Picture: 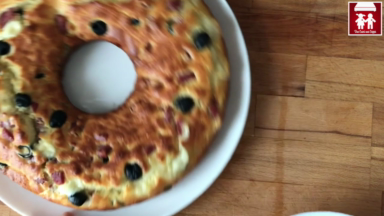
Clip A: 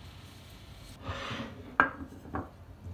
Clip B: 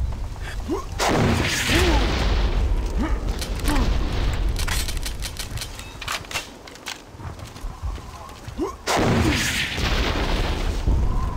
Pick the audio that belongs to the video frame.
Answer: A